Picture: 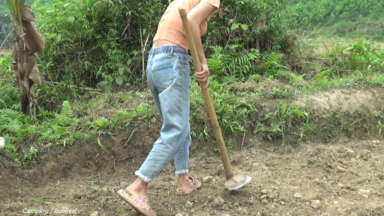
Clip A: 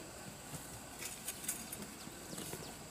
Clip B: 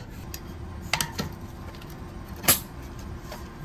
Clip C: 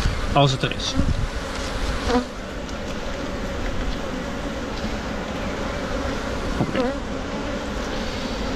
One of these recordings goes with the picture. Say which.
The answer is A